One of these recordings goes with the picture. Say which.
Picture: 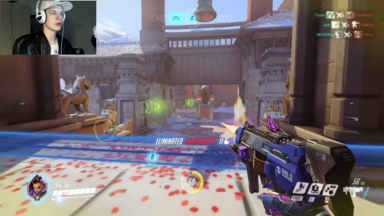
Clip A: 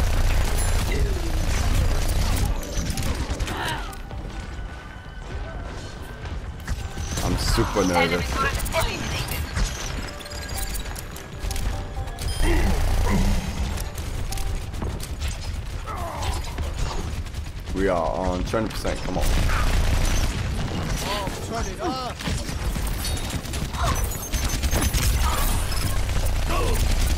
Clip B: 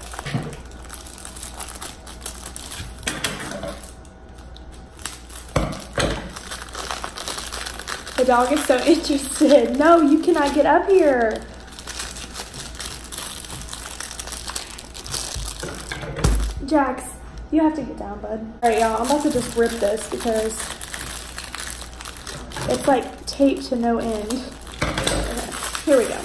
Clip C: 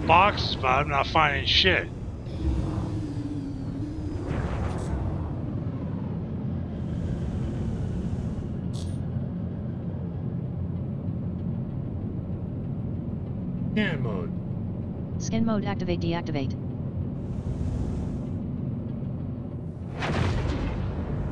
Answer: A